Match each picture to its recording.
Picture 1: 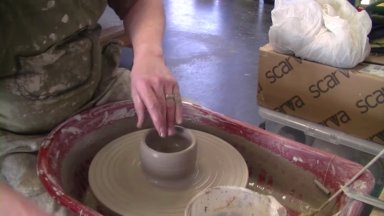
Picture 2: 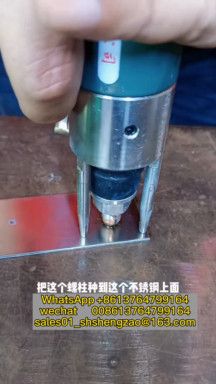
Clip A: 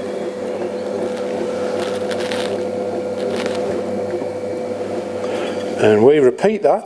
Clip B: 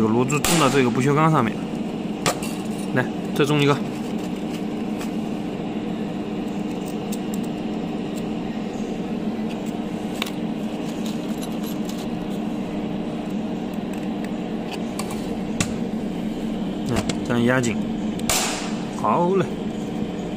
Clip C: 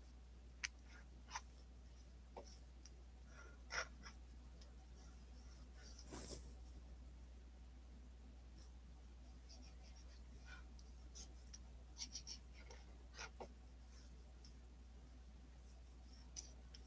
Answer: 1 A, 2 B